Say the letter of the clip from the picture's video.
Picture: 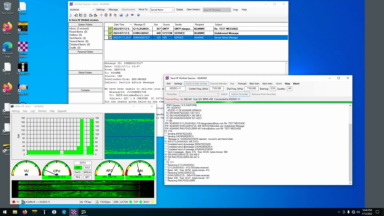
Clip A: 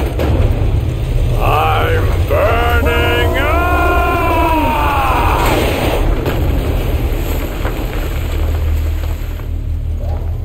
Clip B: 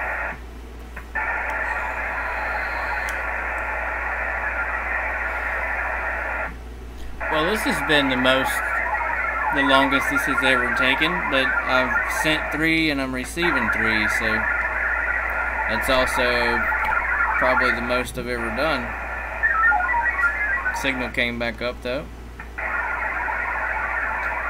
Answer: B